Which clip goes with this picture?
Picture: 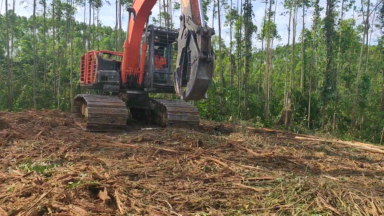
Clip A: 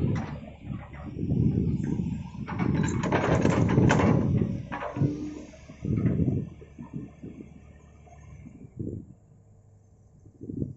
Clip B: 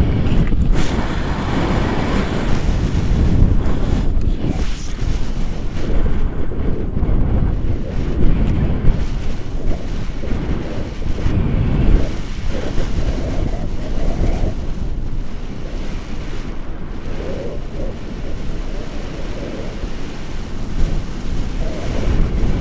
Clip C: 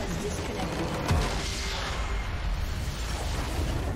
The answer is A